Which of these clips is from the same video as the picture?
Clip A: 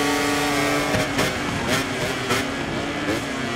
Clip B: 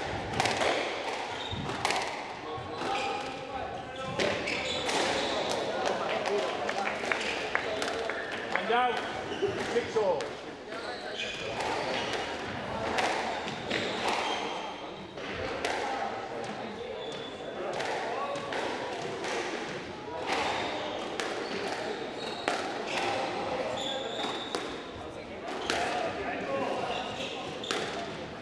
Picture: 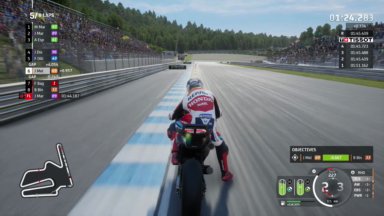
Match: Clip A